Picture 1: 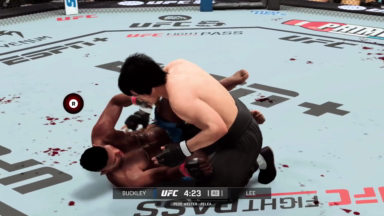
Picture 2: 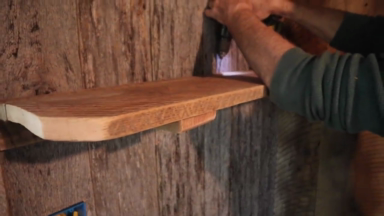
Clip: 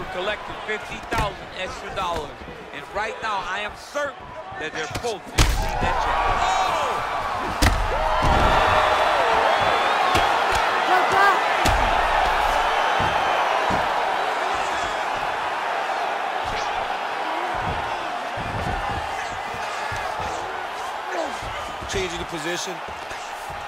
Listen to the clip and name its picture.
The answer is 1